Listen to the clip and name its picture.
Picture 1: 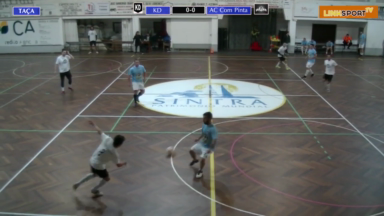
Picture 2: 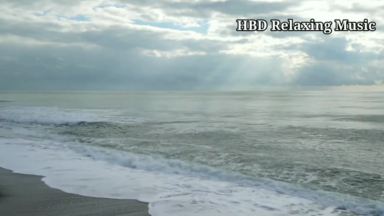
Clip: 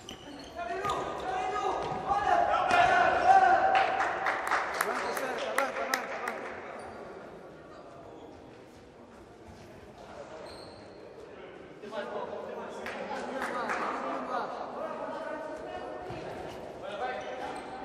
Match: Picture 1